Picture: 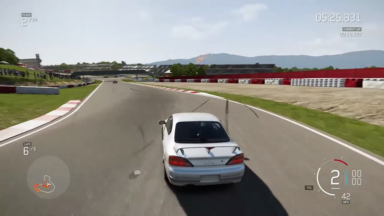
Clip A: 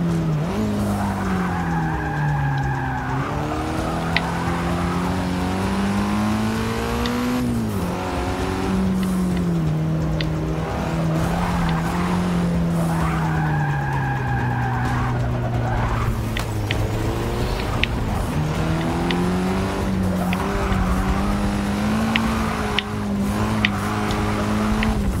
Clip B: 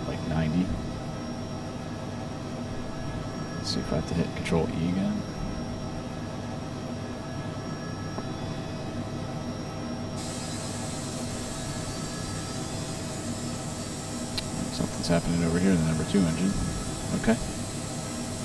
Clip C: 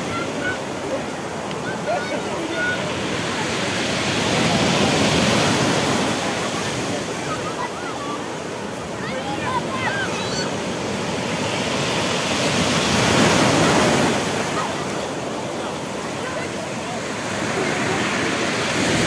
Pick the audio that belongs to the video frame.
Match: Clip A